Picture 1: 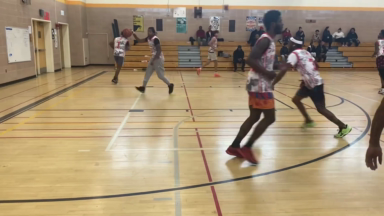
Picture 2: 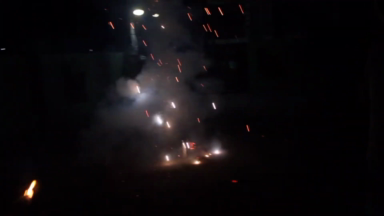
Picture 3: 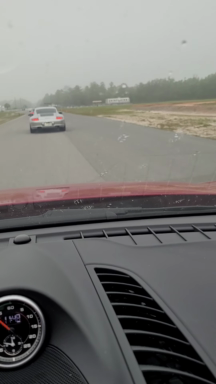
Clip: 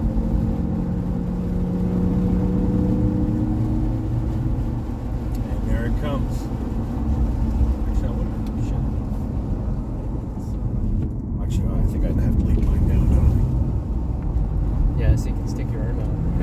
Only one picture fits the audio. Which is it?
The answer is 3